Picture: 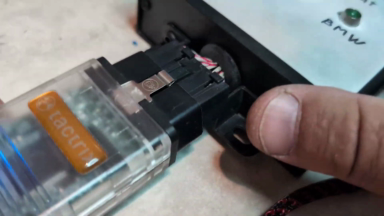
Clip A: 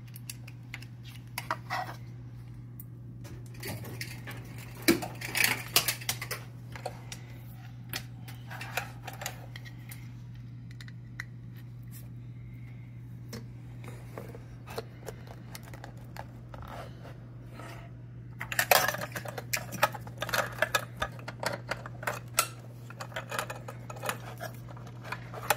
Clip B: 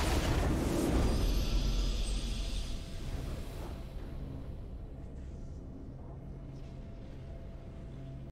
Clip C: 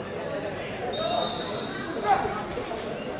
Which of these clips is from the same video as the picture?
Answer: A